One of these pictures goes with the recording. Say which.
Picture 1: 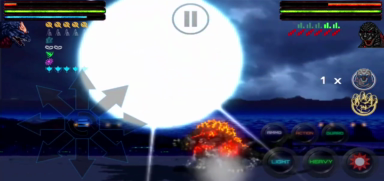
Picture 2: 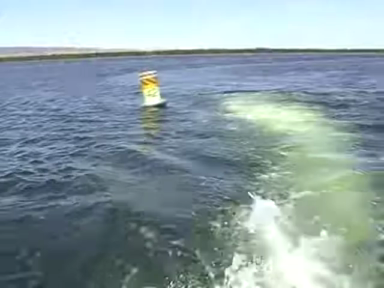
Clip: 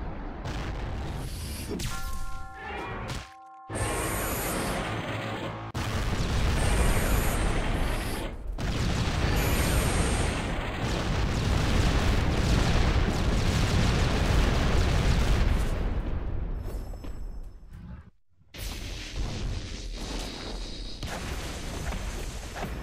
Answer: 1